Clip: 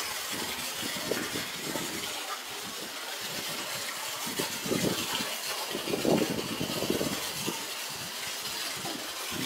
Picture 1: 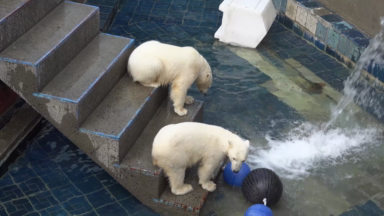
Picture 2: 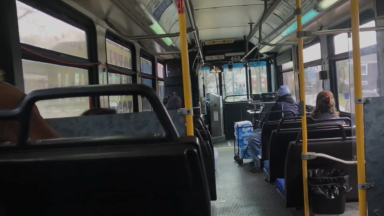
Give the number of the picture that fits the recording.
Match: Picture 1